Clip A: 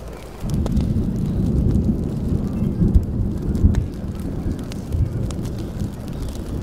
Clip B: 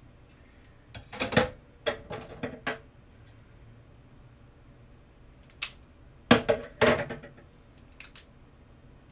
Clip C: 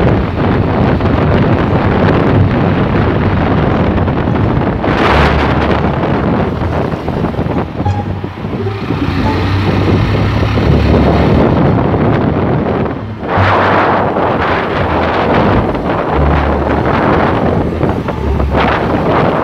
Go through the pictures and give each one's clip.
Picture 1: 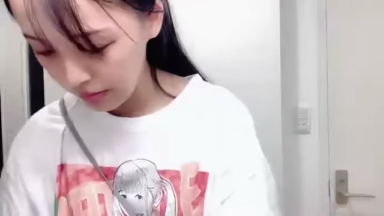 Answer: B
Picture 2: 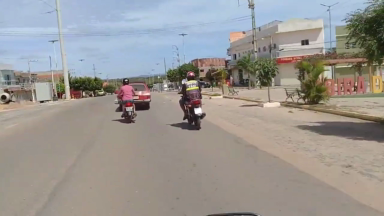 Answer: C